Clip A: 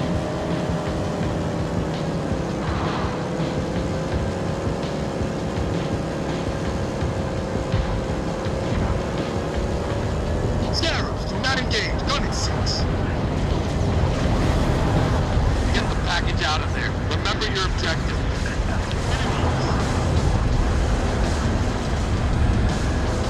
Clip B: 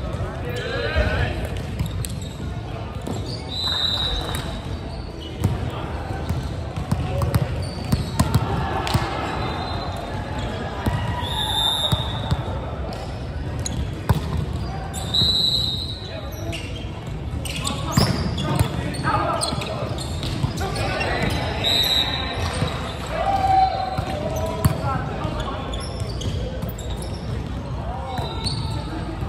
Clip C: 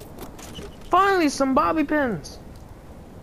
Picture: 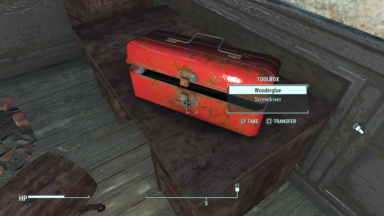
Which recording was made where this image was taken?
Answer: C